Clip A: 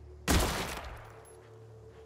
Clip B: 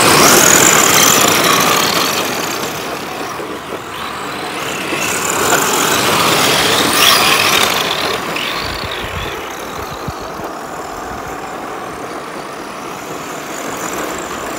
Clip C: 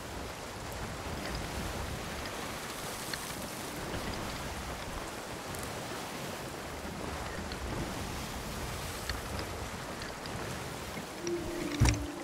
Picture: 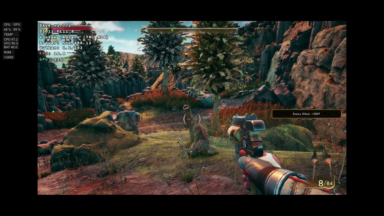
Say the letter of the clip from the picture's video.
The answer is A